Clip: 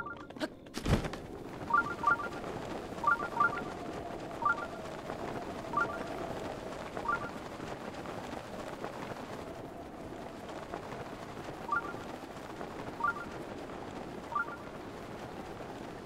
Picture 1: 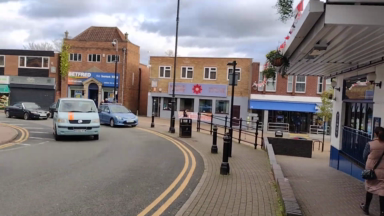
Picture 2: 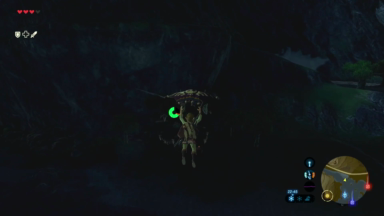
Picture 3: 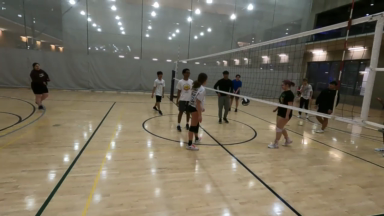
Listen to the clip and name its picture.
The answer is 2